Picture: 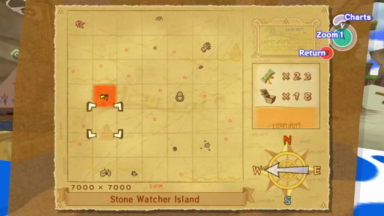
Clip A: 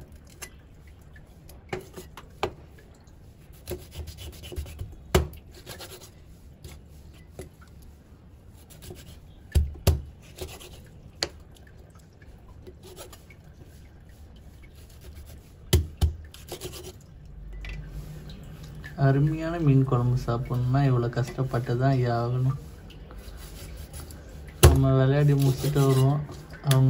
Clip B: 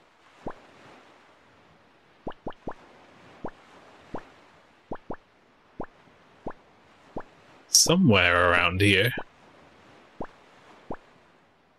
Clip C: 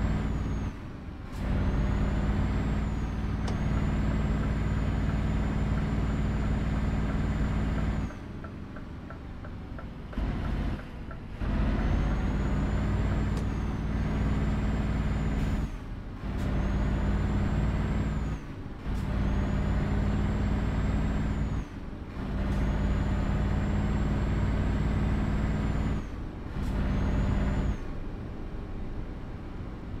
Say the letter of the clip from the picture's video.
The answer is B